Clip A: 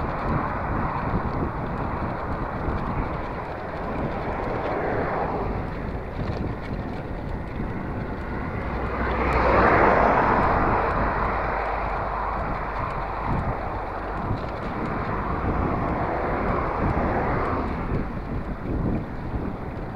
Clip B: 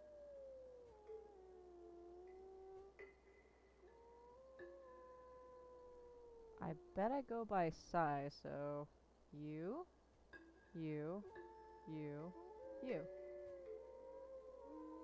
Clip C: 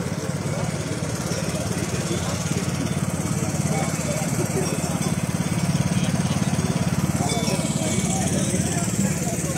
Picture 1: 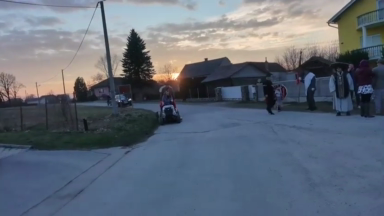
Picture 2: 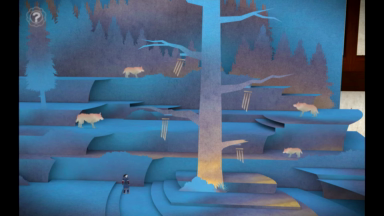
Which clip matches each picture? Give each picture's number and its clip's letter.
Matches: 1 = C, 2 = B